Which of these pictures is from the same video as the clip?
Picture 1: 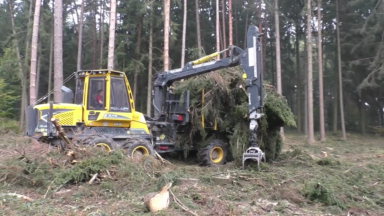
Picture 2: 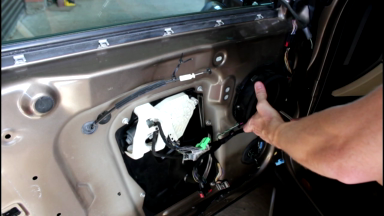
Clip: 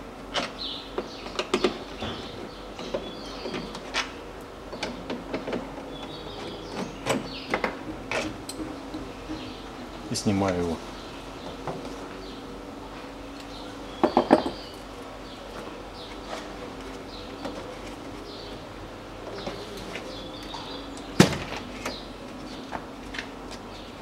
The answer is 2